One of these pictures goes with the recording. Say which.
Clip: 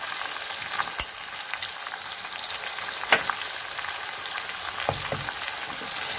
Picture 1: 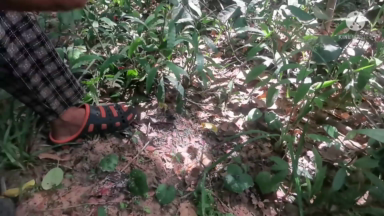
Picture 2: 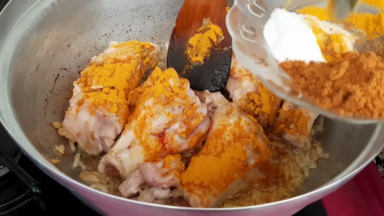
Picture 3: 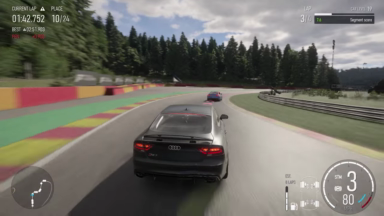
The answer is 2